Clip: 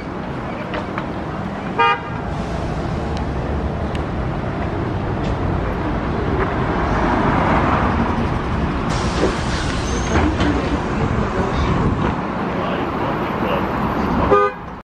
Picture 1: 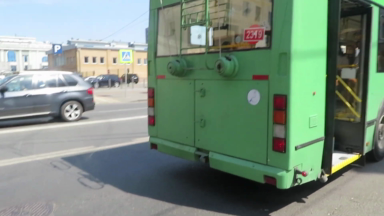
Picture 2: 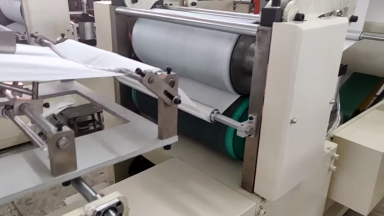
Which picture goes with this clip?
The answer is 1